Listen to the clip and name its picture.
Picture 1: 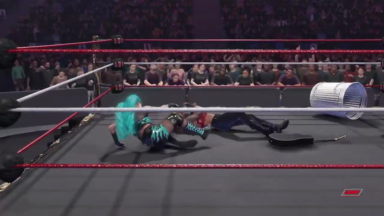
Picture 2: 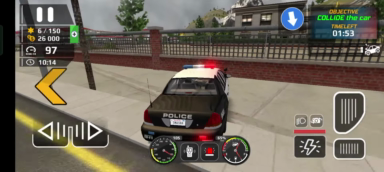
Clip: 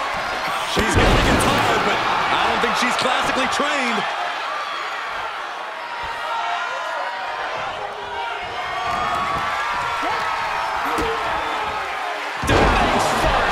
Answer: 1